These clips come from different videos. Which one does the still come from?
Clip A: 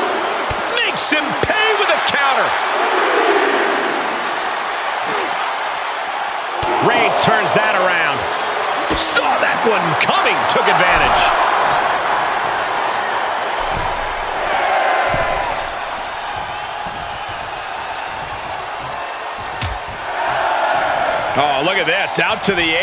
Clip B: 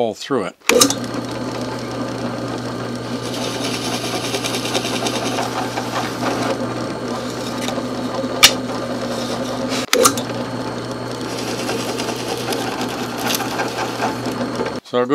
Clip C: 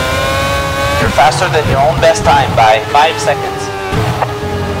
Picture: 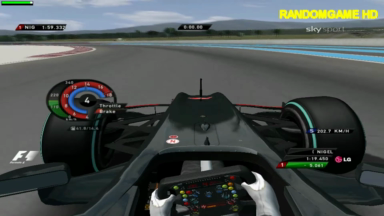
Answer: C